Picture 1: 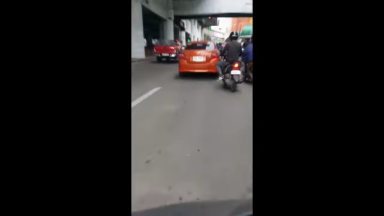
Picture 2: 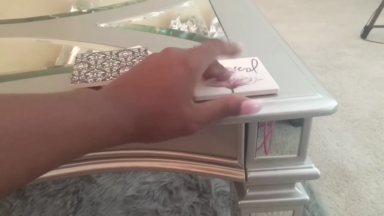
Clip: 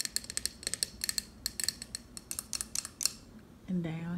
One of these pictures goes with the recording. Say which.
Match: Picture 2